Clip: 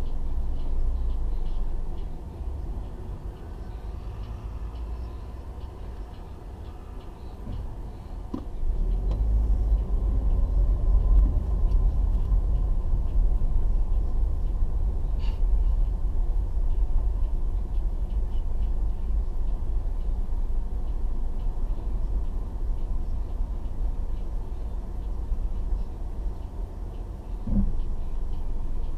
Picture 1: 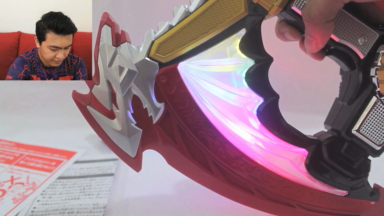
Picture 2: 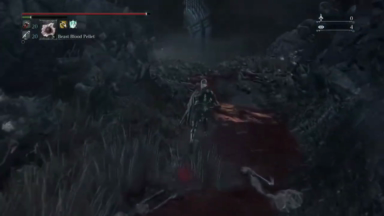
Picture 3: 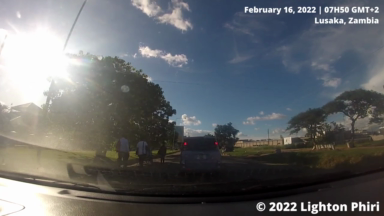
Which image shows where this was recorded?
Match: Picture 3